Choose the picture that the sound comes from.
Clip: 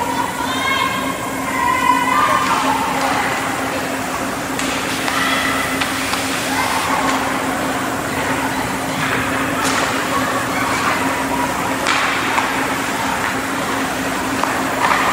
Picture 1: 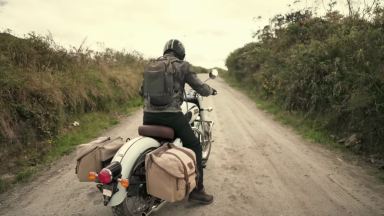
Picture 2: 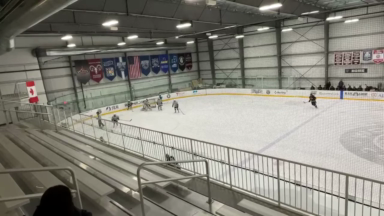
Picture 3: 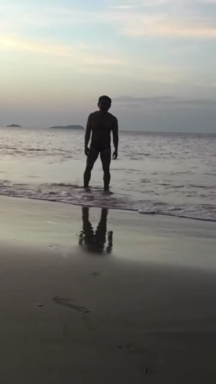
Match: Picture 2